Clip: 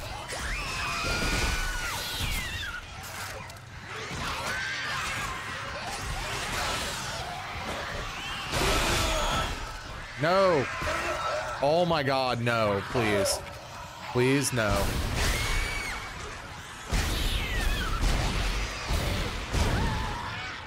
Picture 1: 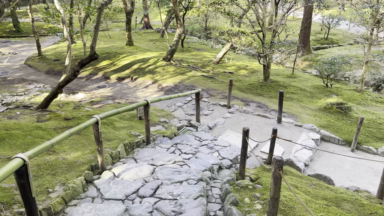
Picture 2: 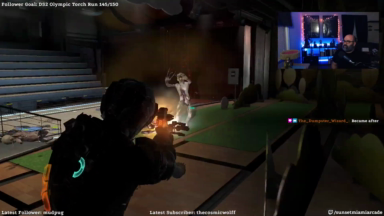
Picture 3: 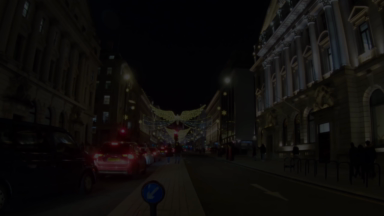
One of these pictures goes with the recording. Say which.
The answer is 2